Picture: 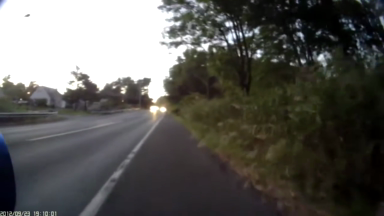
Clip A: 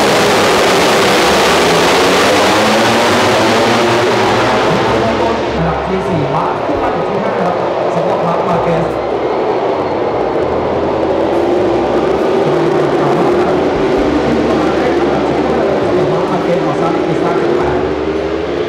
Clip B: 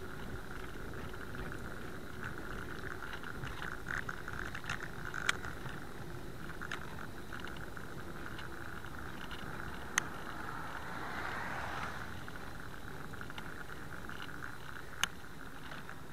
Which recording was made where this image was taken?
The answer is B